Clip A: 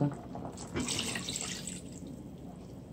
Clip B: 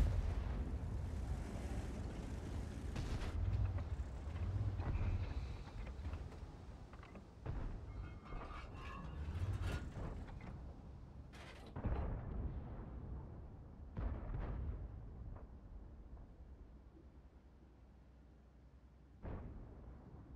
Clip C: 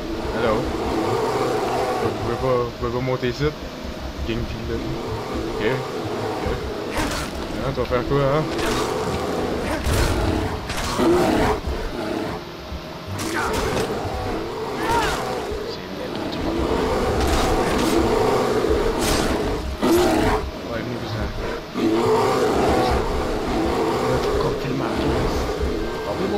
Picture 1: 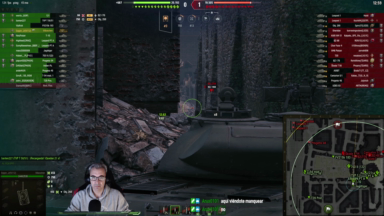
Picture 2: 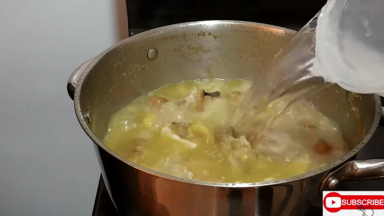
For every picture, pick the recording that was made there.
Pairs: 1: B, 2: A